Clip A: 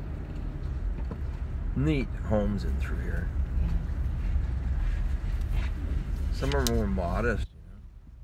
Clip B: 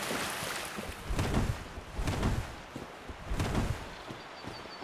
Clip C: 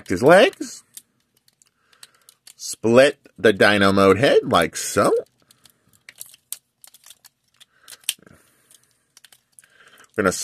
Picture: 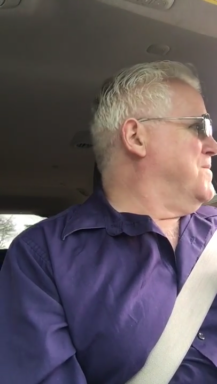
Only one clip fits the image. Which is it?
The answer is A